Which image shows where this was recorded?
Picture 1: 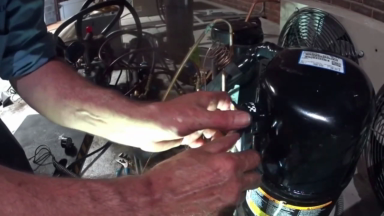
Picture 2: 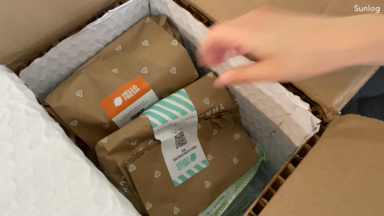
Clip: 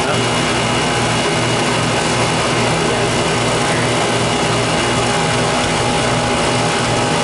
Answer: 1